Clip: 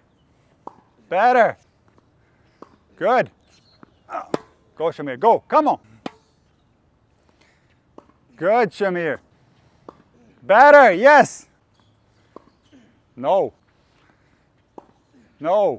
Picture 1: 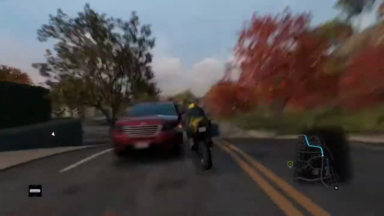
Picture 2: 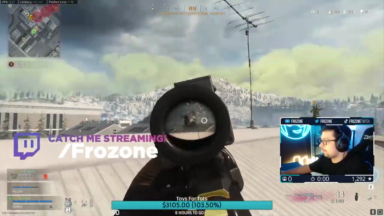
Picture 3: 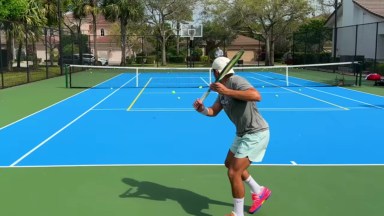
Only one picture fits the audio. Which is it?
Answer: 3